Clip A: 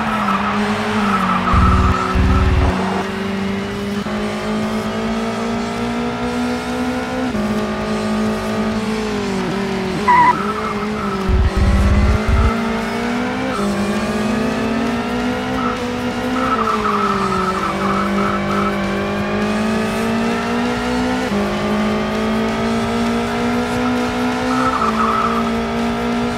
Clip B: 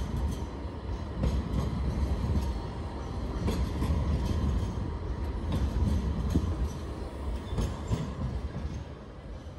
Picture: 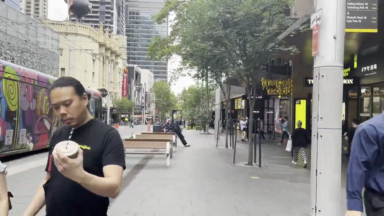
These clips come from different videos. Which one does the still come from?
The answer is B